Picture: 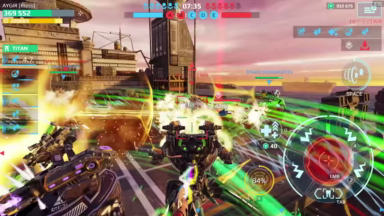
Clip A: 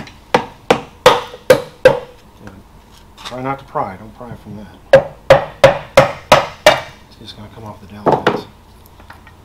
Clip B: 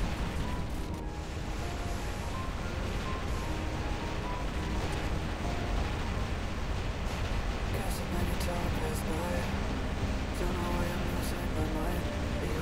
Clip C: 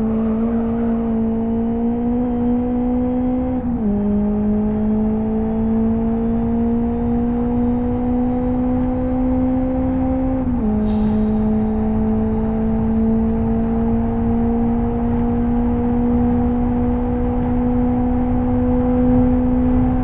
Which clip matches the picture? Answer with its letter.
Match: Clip B